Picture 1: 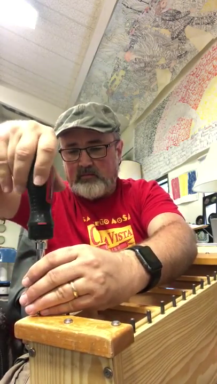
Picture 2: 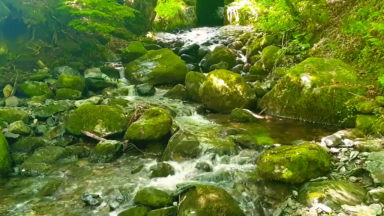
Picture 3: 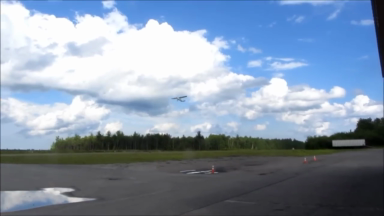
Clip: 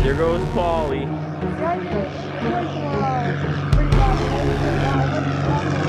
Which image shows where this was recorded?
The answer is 3